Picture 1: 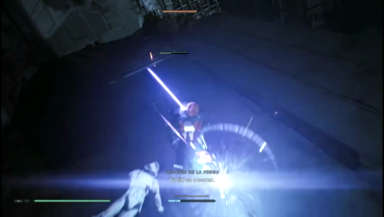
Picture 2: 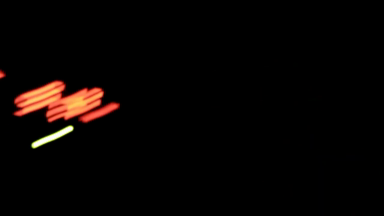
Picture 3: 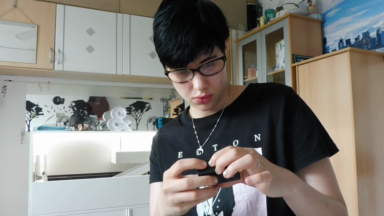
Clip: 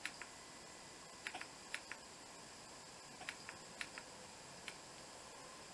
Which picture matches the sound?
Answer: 3